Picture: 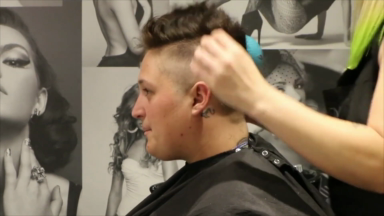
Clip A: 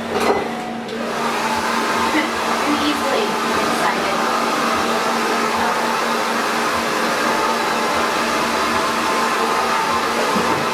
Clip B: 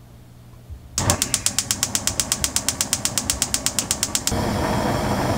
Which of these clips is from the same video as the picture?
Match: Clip A